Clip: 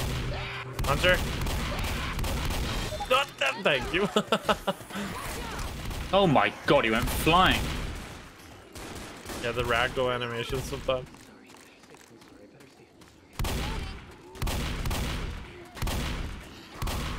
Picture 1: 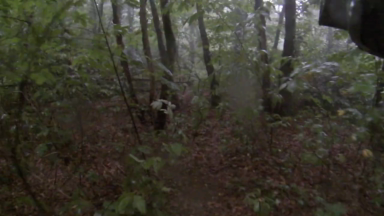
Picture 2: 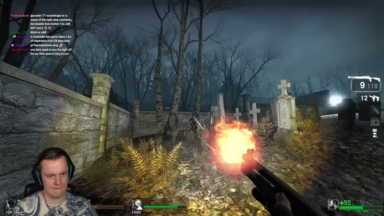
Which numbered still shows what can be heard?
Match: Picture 2